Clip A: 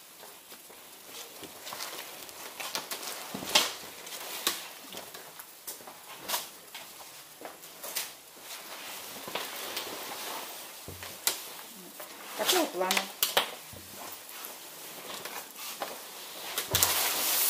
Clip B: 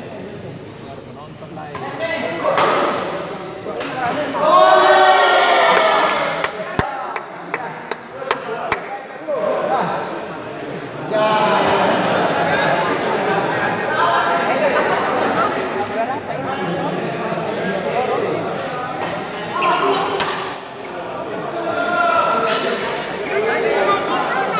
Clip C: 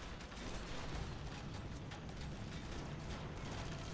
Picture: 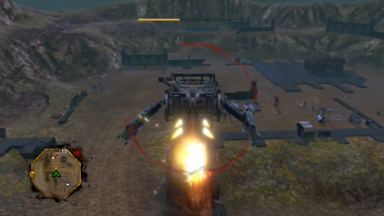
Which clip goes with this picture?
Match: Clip C